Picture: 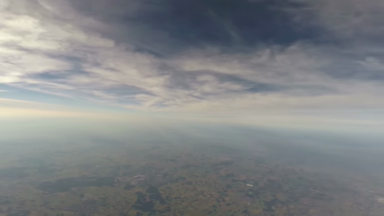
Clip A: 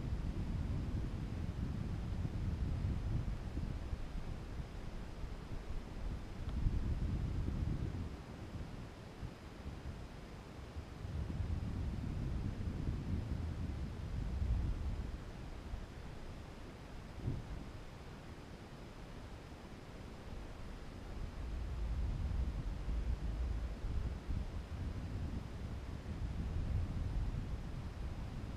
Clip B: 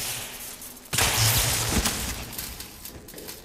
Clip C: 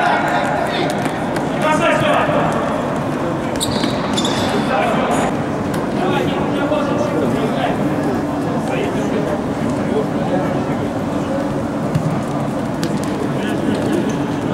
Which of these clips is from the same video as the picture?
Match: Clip A